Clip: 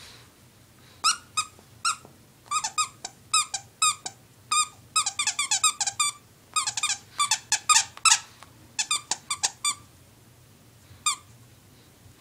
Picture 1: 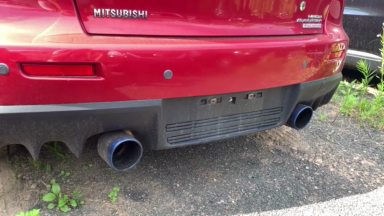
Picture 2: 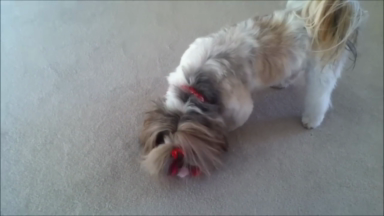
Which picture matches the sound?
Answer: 2